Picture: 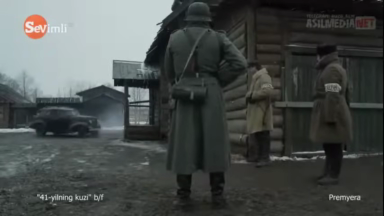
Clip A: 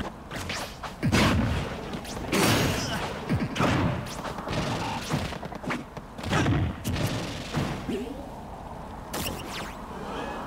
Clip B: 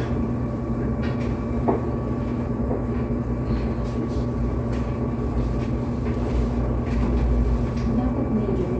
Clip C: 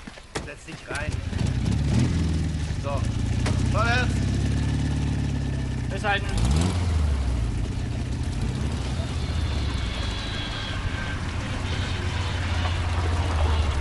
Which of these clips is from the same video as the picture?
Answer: C